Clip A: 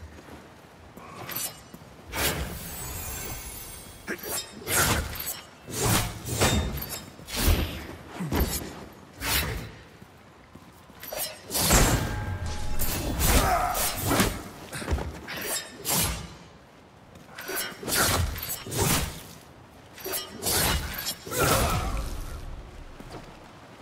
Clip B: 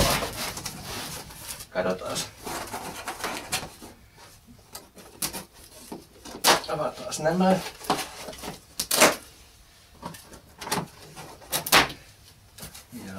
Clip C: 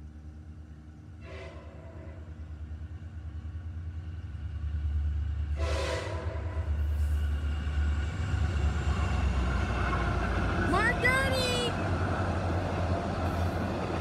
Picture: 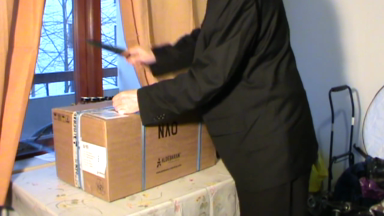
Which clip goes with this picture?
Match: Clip B